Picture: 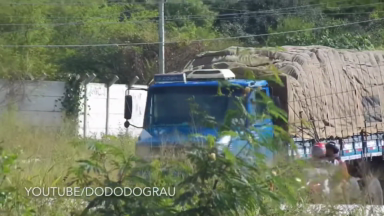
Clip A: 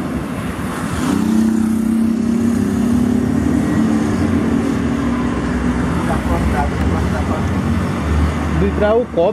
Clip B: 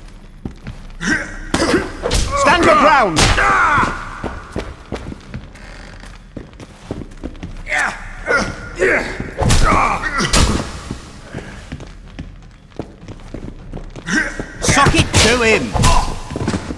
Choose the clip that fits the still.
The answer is A